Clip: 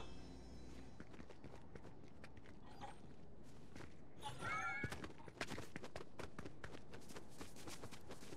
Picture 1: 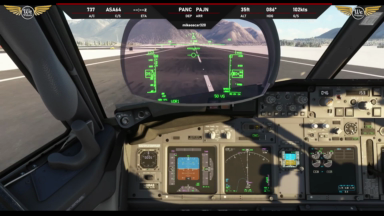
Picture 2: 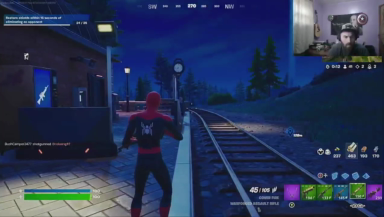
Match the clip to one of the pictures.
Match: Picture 2